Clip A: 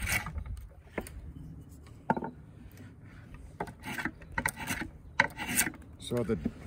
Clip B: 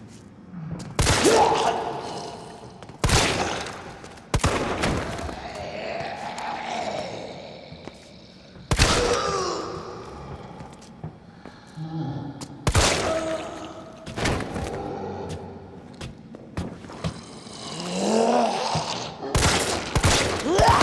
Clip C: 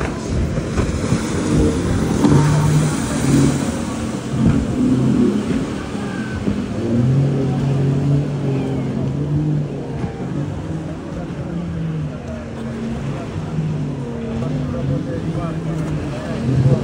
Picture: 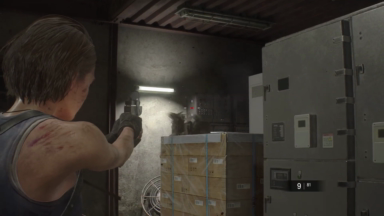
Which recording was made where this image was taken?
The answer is B